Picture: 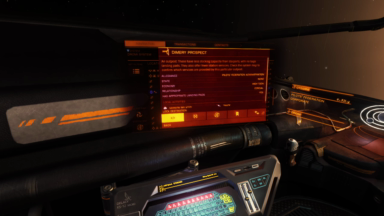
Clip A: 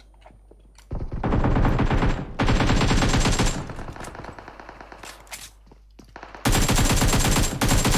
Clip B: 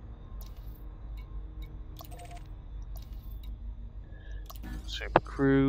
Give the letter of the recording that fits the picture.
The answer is B